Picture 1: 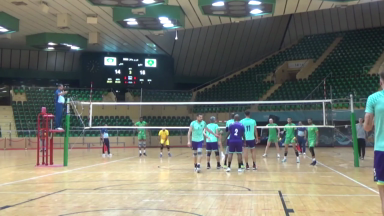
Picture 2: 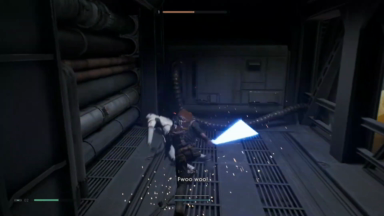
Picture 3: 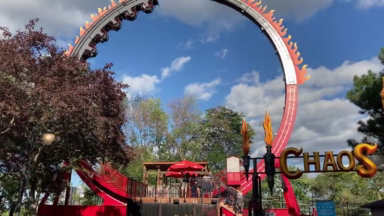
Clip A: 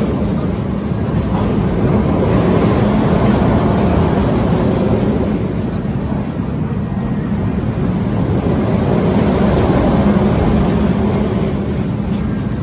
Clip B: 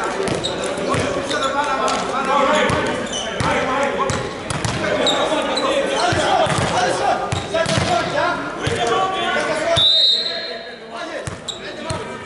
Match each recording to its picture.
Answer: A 3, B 1